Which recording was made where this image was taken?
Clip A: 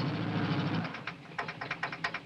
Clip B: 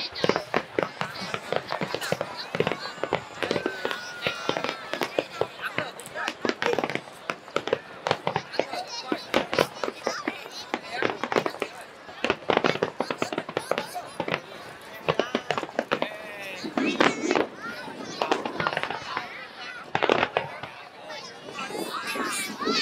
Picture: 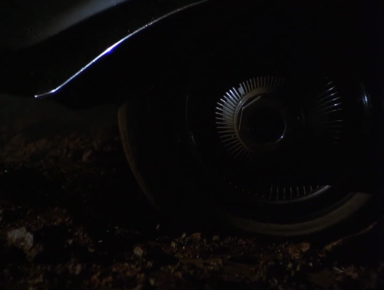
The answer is A